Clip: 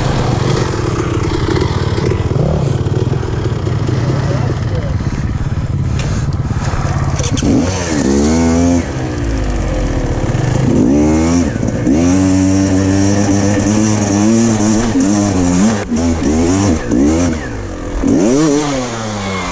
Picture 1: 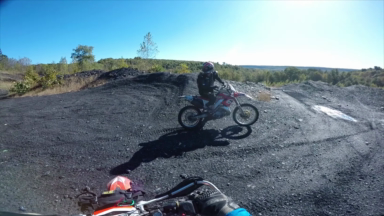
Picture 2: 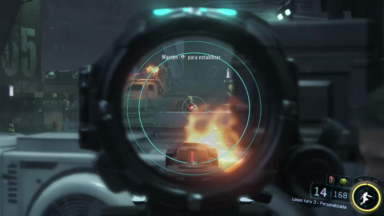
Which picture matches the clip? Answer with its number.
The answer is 1